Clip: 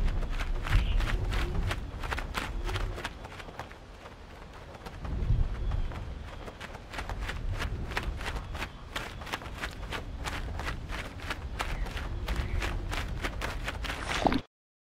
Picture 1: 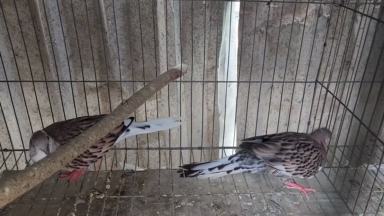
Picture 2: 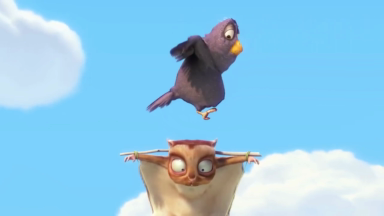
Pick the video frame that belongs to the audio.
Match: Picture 2